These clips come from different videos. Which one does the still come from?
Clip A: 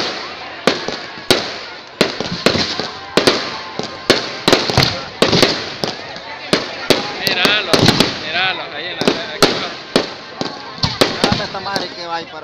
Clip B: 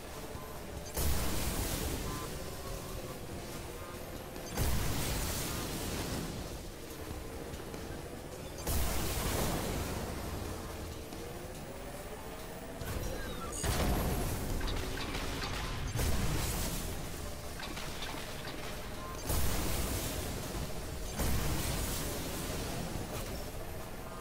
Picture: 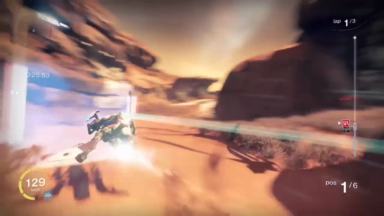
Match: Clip B